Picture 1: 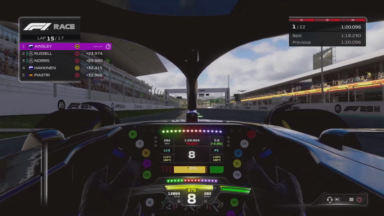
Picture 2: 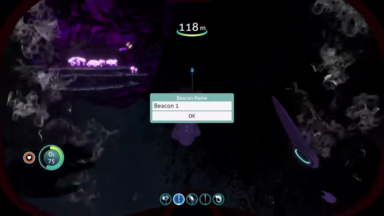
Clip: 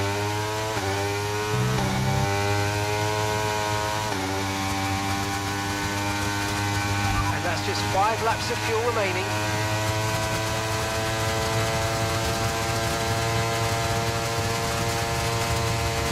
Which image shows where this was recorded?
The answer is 1